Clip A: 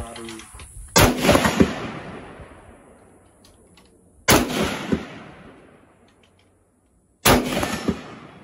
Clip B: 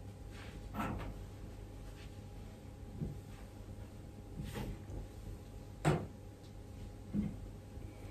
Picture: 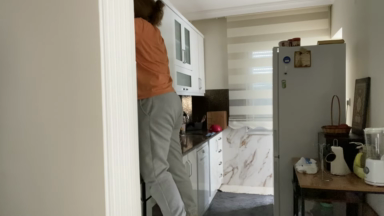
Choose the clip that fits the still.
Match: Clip B